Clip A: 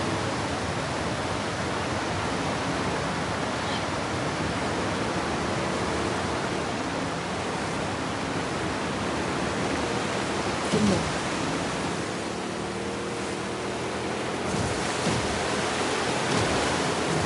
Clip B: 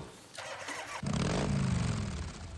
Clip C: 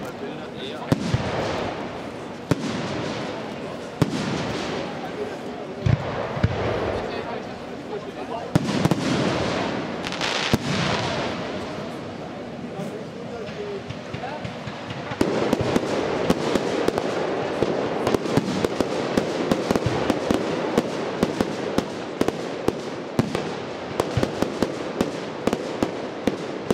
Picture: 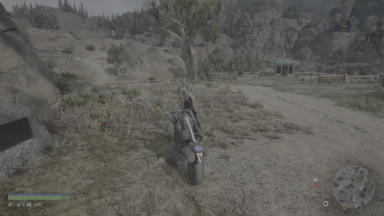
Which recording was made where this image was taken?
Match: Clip B